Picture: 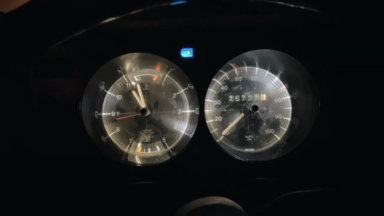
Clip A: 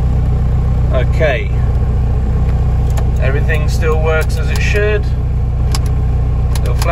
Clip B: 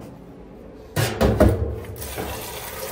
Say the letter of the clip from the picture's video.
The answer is A